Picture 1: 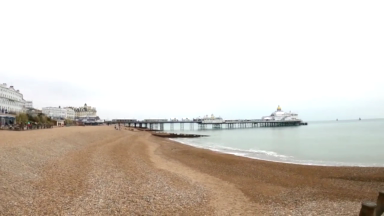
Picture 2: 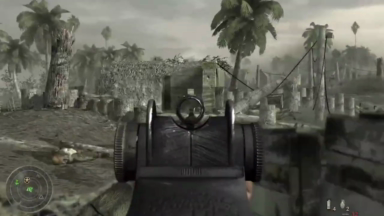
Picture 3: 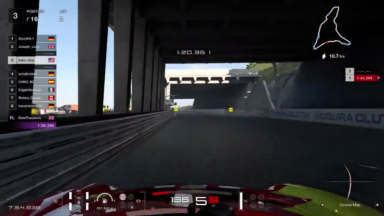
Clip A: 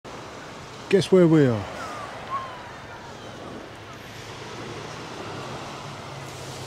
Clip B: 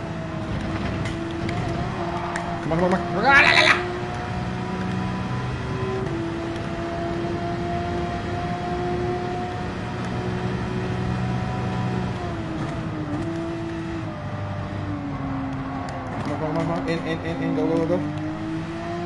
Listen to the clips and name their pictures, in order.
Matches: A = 1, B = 3